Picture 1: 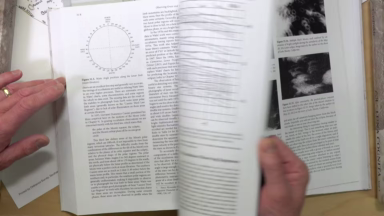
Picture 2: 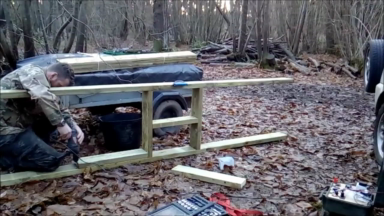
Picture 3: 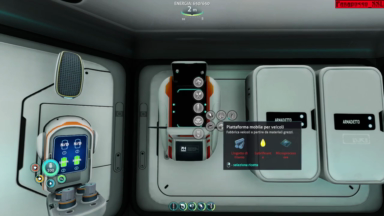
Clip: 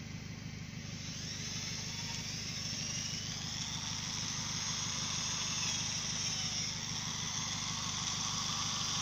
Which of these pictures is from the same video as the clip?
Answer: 2